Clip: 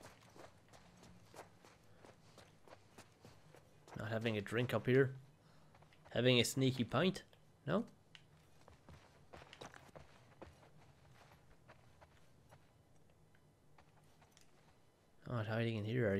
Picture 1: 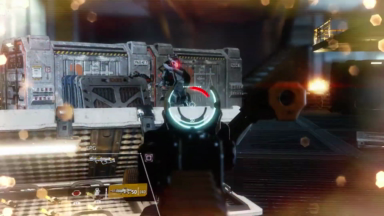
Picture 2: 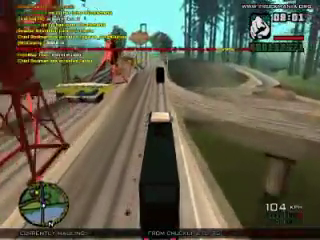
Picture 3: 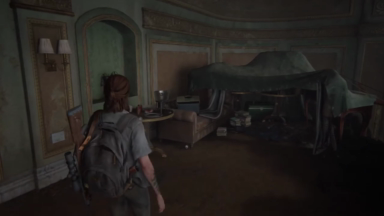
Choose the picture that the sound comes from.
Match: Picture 3